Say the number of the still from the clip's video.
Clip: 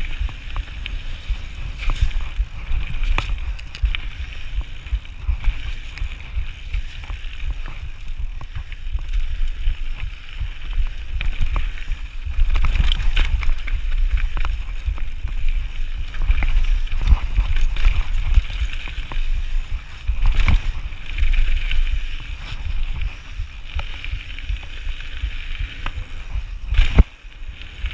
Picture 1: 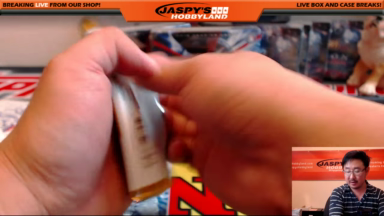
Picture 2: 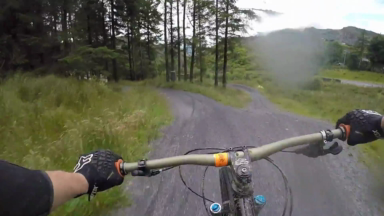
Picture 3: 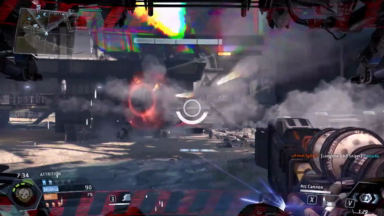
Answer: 2